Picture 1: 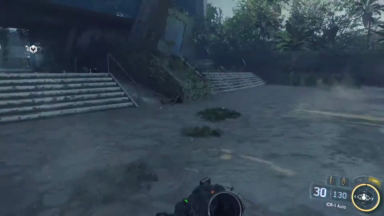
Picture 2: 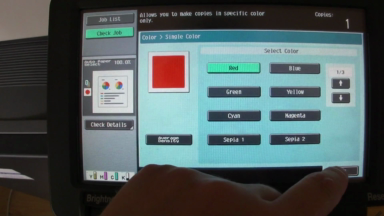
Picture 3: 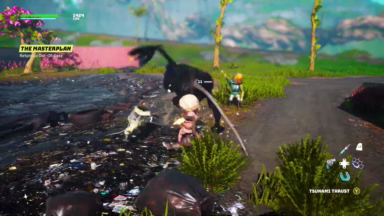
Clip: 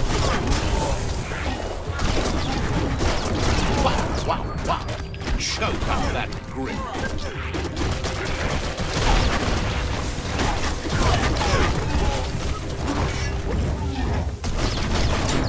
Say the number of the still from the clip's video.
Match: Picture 3